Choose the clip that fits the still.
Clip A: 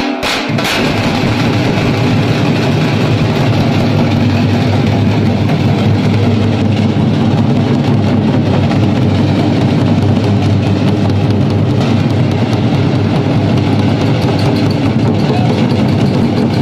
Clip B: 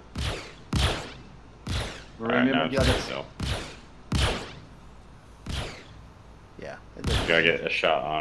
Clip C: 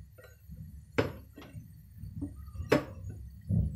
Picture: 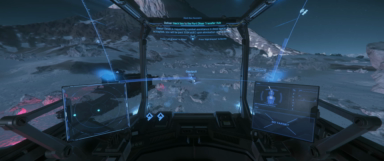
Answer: B